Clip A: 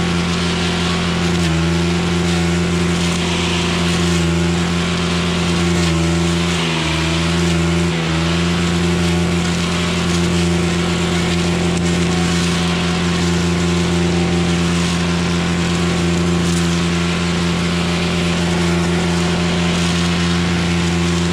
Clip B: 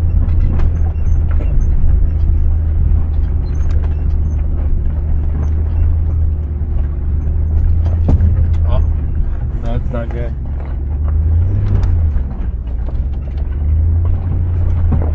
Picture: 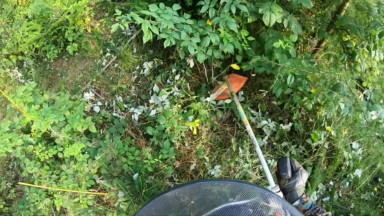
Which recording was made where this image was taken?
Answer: A